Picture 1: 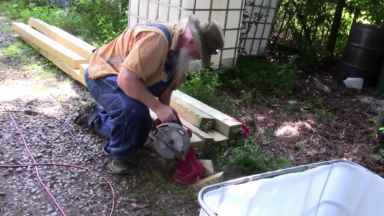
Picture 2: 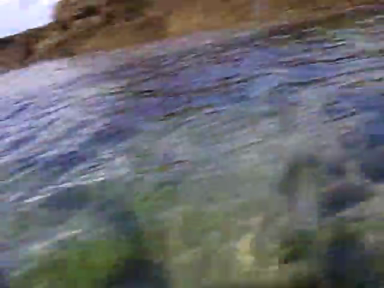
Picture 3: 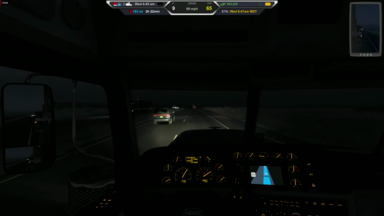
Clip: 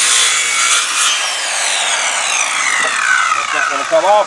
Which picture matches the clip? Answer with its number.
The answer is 1